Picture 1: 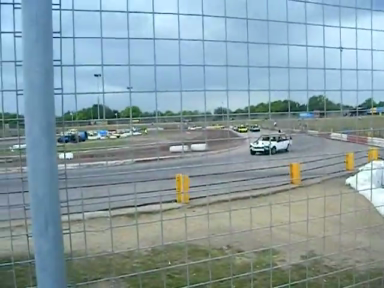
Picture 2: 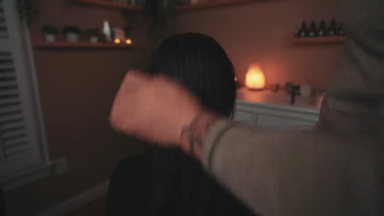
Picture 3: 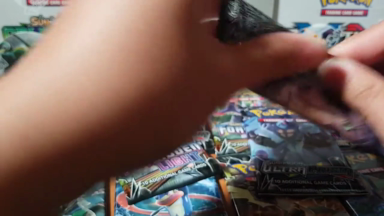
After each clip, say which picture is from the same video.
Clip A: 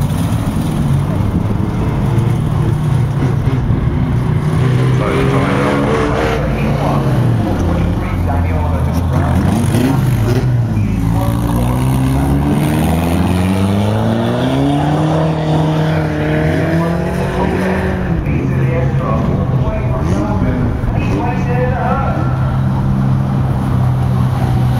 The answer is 1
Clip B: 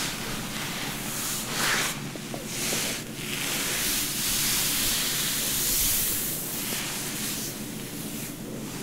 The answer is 2